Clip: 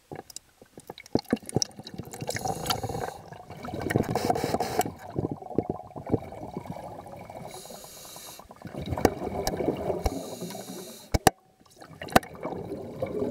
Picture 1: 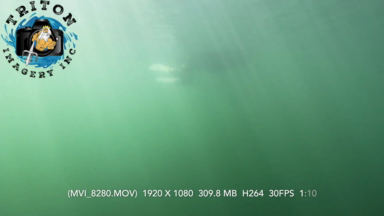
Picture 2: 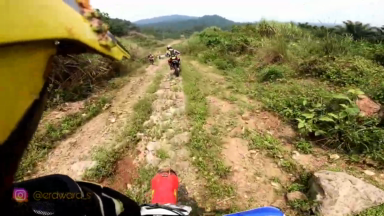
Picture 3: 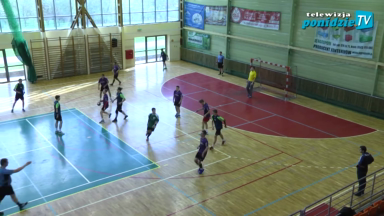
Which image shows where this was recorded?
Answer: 1